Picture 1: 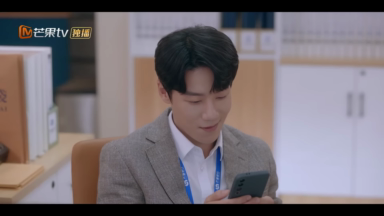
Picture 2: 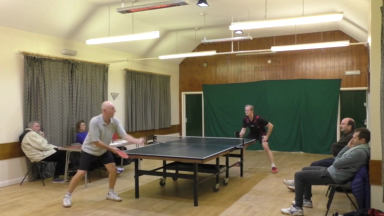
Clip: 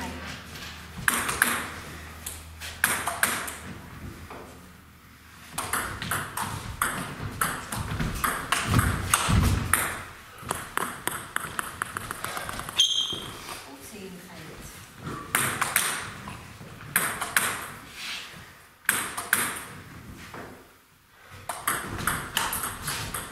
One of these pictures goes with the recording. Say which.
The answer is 2